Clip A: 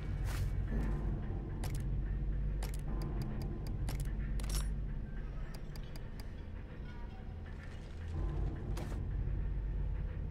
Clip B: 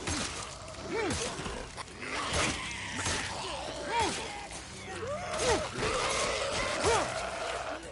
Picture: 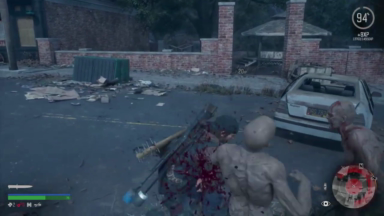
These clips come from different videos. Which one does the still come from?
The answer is B